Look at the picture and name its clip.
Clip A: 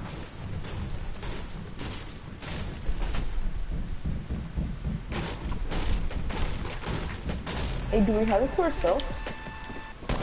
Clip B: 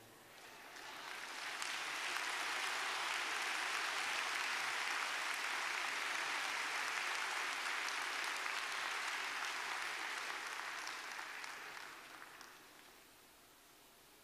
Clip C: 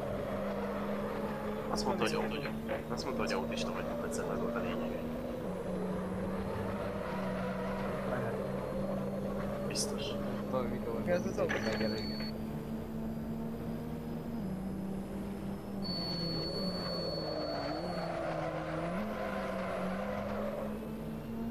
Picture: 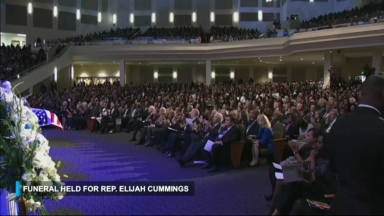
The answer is B